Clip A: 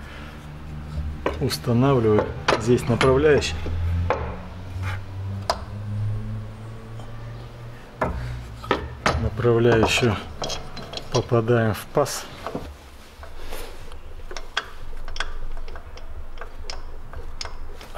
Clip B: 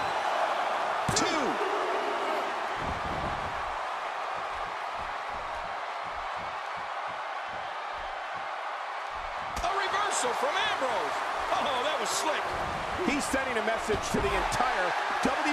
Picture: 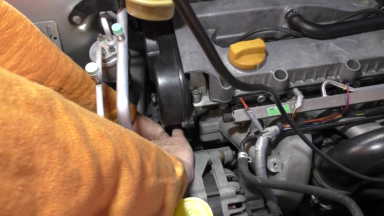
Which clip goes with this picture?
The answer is A